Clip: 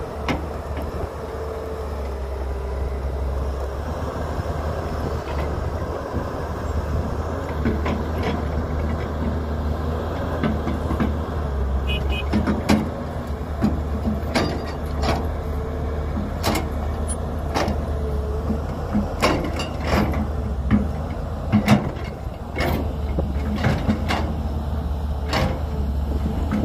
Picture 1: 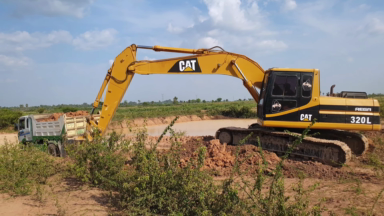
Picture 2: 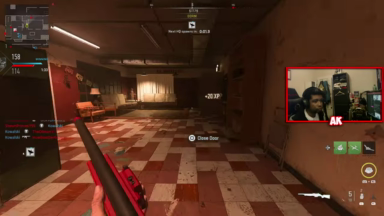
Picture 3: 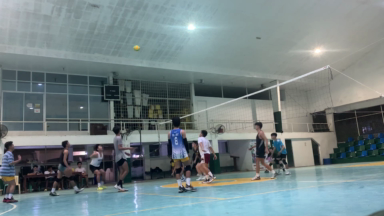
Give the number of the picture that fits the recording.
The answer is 1